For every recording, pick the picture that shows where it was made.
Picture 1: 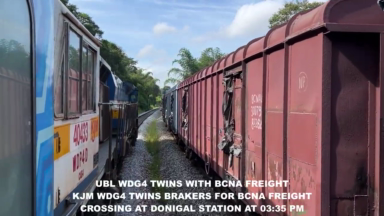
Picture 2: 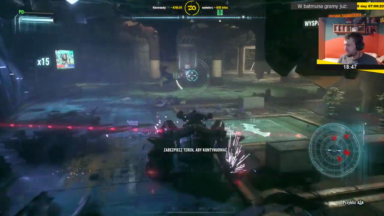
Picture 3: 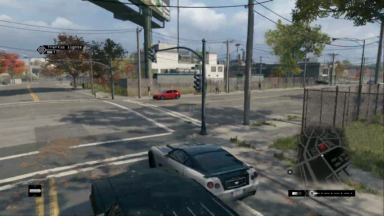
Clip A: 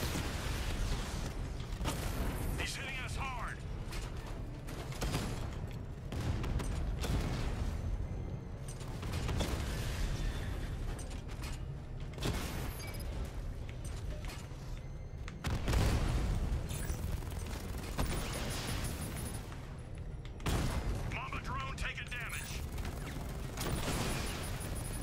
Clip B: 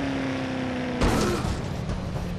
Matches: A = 2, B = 3